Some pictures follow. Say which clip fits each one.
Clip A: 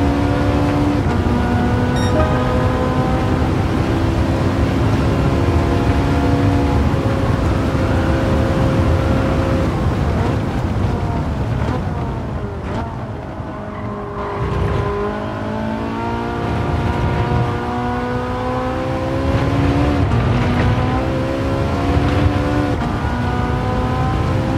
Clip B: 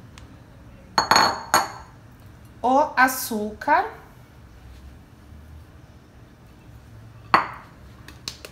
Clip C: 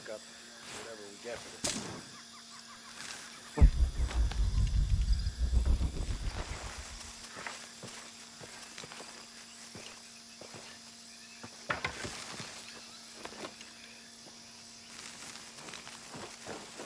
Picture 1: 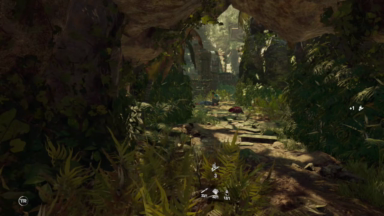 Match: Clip C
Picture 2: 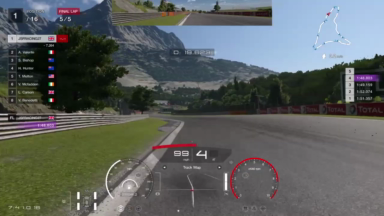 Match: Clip A